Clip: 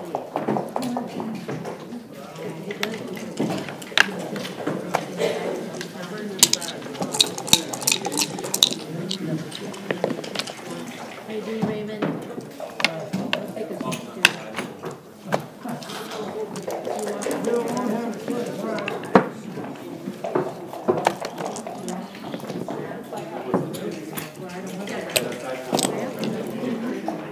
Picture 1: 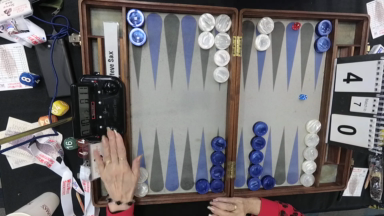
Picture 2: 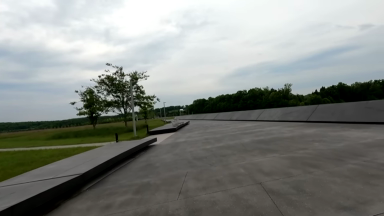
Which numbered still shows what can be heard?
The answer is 1